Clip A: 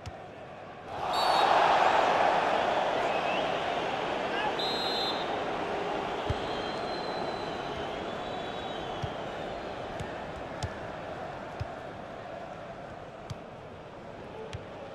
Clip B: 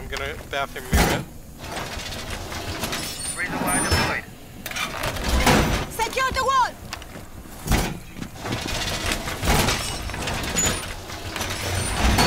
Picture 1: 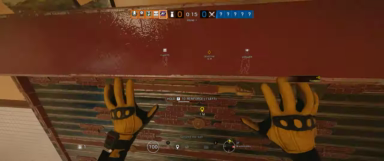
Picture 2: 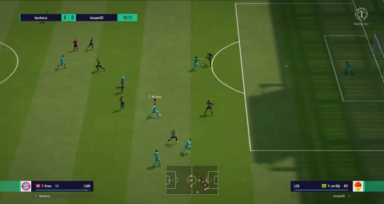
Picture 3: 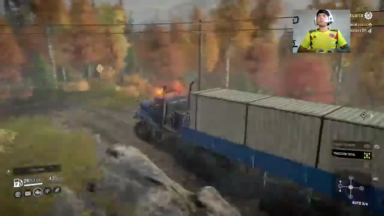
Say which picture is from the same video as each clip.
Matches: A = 2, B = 1